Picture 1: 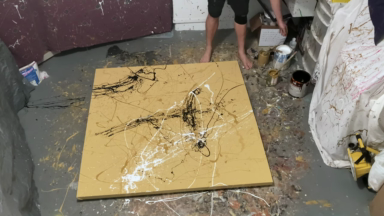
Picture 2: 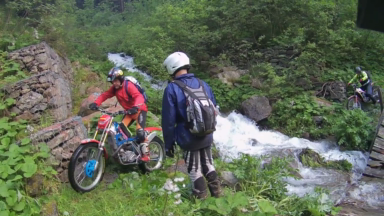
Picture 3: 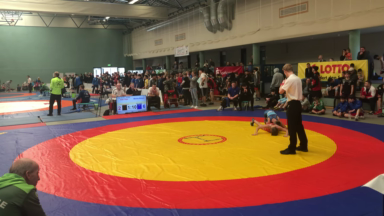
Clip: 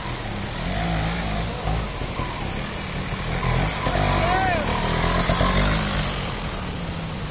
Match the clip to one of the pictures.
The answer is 2